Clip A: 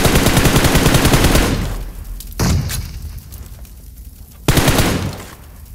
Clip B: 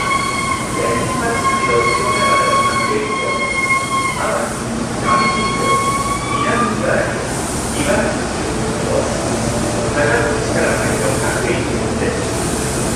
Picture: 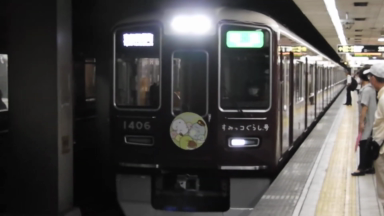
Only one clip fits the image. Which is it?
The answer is B